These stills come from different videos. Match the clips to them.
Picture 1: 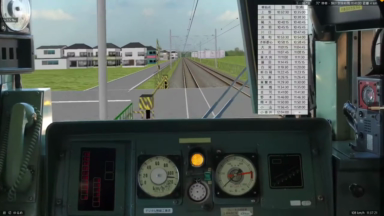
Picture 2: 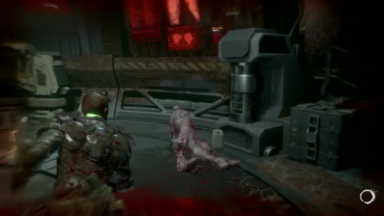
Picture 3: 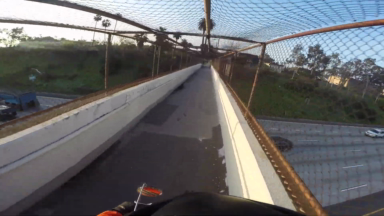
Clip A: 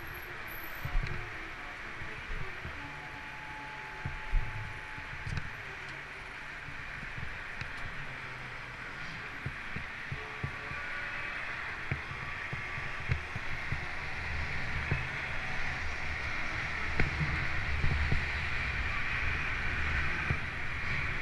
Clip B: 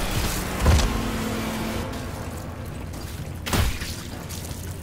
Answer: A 3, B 2